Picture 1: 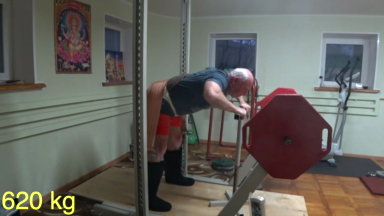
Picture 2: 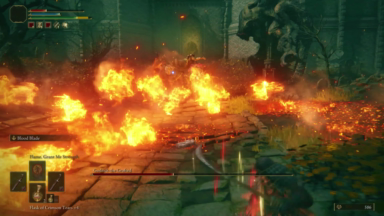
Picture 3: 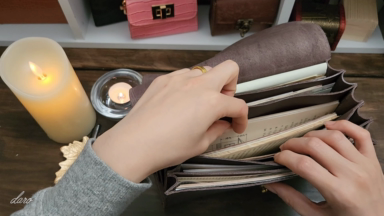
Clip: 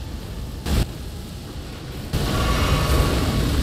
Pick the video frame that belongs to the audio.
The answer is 2